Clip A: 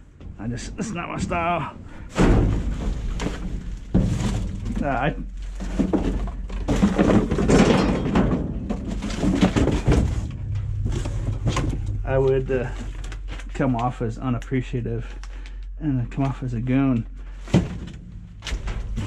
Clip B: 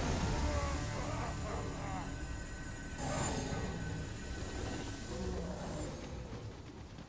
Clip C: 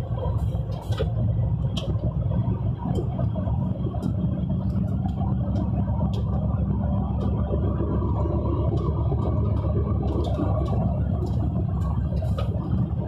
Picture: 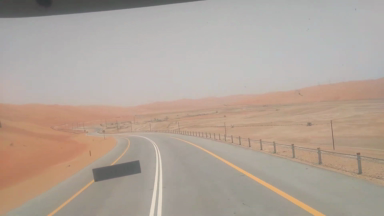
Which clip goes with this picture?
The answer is C